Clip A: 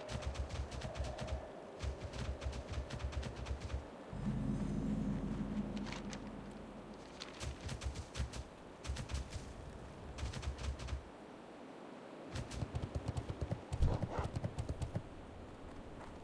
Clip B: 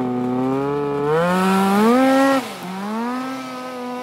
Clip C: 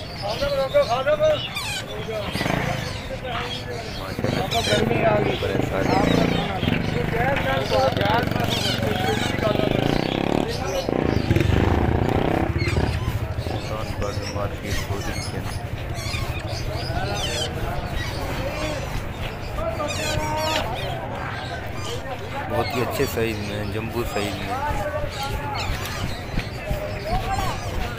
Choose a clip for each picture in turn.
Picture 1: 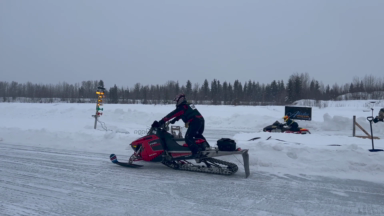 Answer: B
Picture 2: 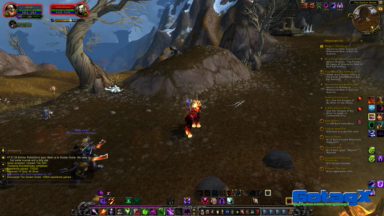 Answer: A